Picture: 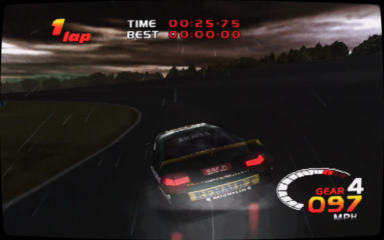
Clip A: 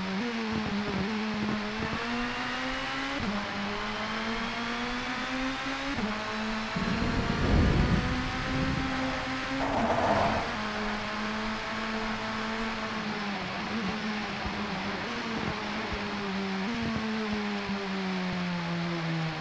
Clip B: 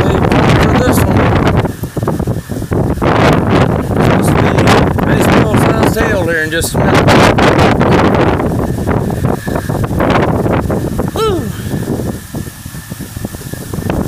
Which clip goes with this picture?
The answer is A